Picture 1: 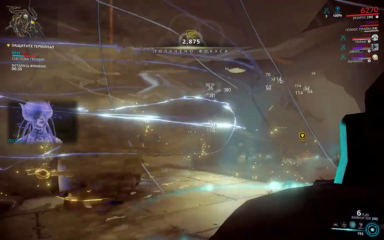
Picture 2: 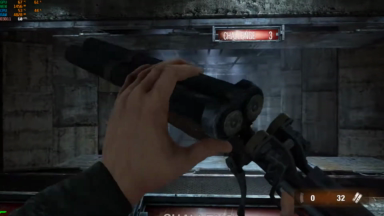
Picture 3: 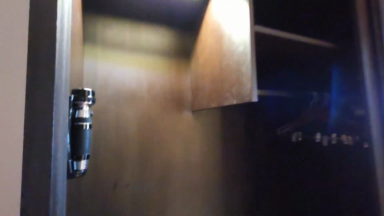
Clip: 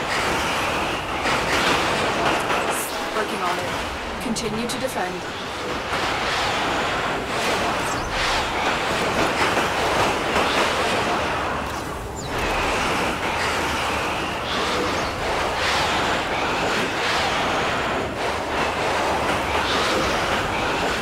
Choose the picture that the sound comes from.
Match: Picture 1